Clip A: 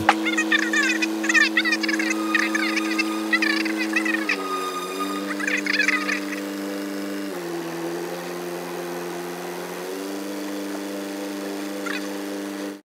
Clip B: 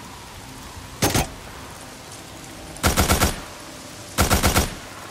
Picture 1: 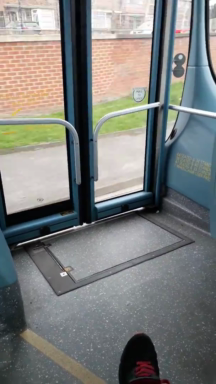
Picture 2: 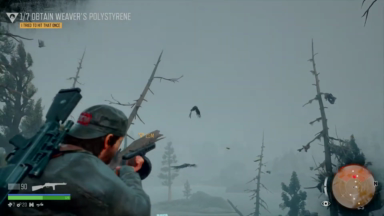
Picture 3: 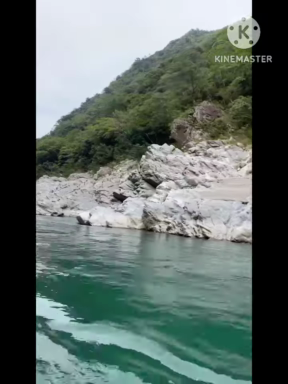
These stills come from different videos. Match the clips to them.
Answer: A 3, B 2